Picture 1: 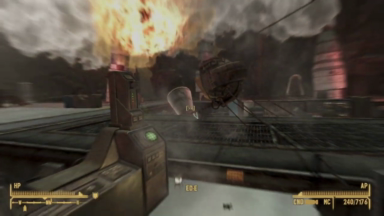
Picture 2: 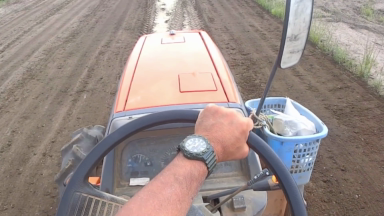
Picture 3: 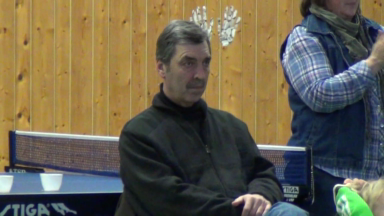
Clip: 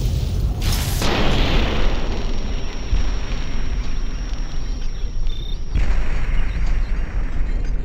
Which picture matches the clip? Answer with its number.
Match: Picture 1